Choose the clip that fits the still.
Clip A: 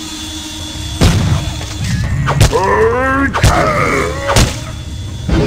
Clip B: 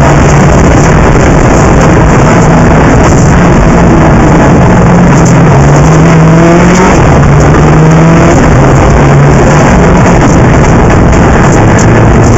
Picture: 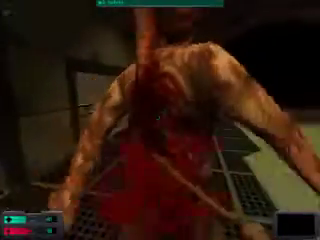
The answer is A